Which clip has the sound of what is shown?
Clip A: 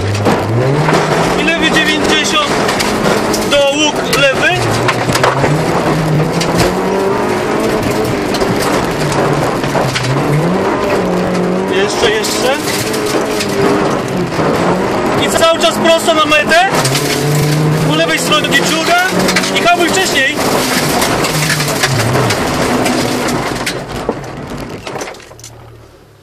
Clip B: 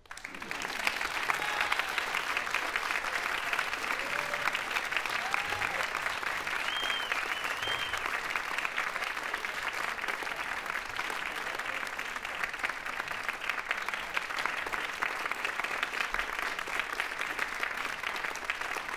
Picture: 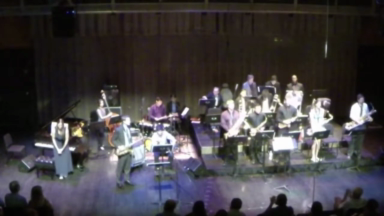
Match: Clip B